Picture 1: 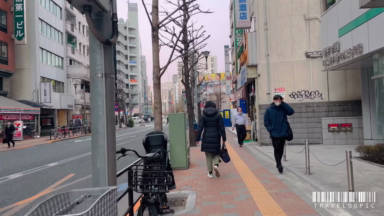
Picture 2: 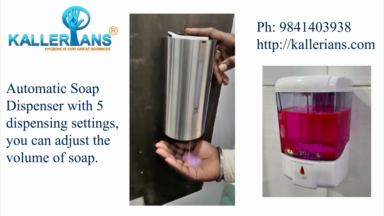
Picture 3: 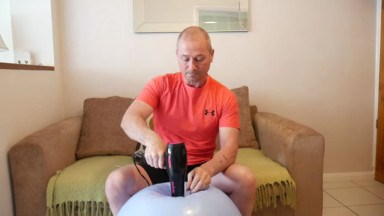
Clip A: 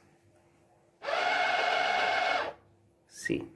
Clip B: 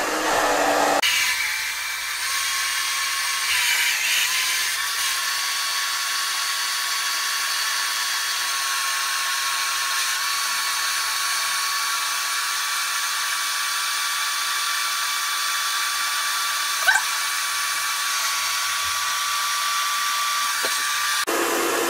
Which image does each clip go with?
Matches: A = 2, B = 3